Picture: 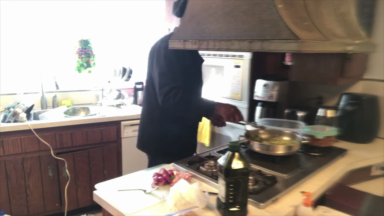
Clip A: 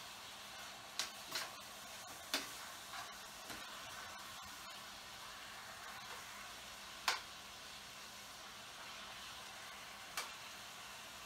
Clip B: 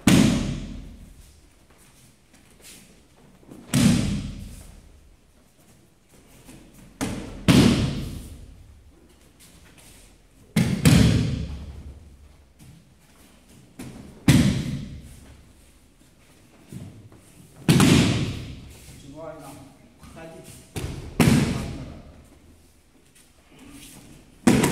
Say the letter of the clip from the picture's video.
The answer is A